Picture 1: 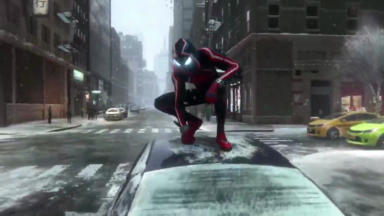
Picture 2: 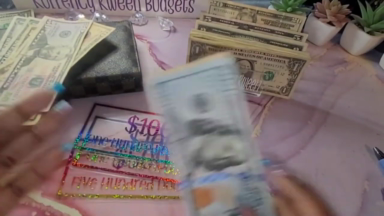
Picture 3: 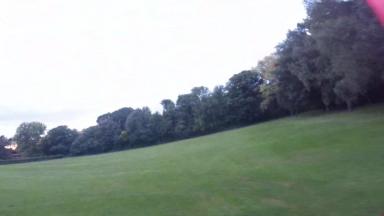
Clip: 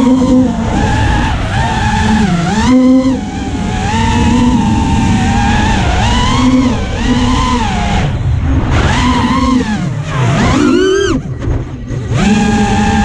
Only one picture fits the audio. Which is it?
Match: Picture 3